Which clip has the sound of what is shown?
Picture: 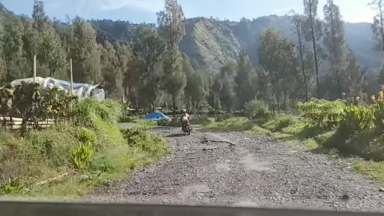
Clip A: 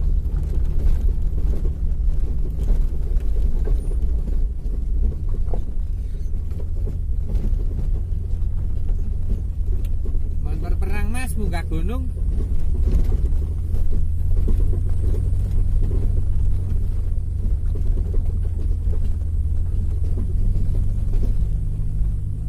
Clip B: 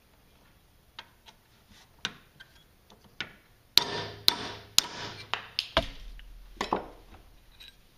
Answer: A